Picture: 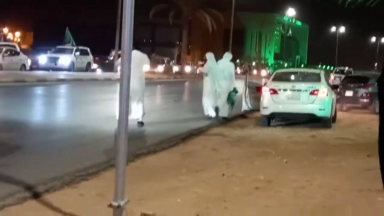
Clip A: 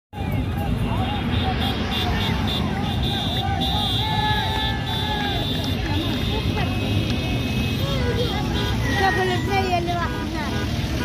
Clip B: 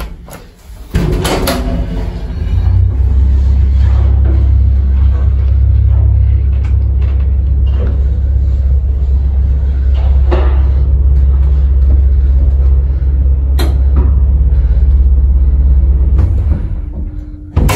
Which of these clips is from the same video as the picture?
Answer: A